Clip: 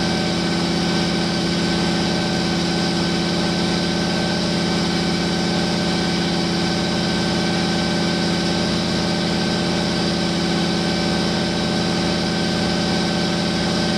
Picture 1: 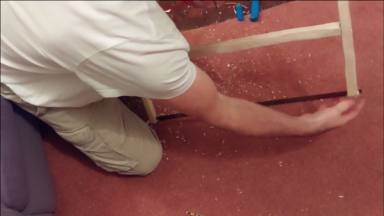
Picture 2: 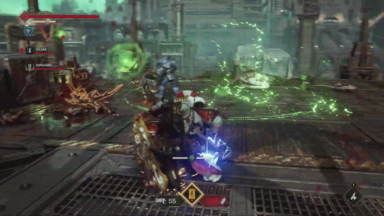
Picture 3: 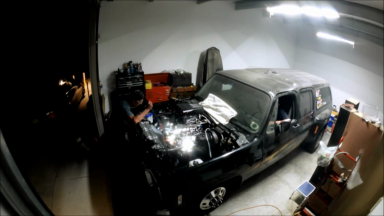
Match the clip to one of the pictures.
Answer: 3